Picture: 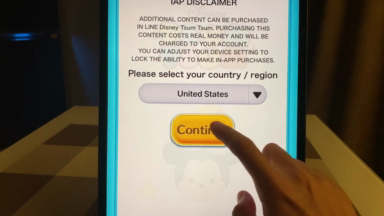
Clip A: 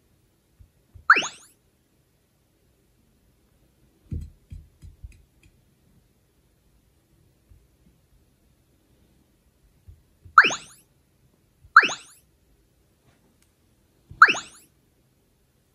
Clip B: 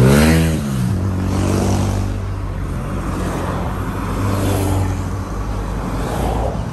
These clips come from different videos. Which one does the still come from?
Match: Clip A